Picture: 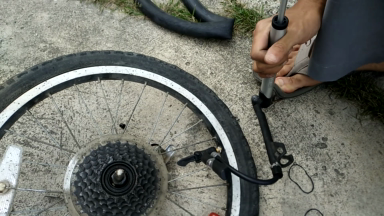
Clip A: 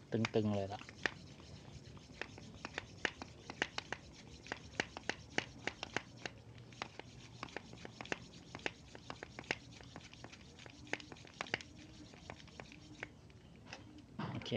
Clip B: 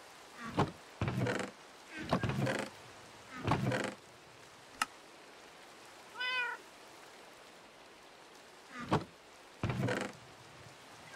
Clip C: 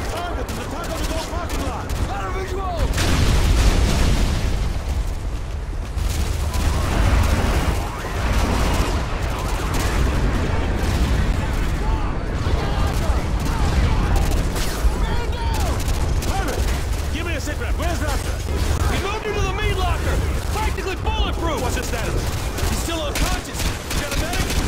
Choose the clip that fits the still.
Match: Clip A